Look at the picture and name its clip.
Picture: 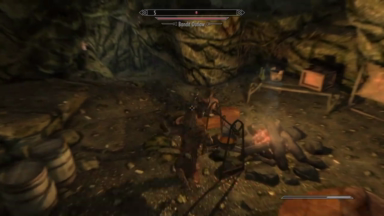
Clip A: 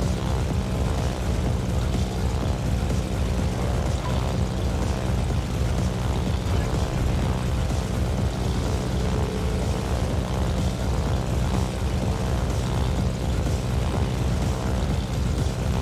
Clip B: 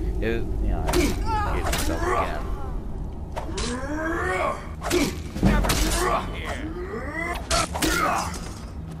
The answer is B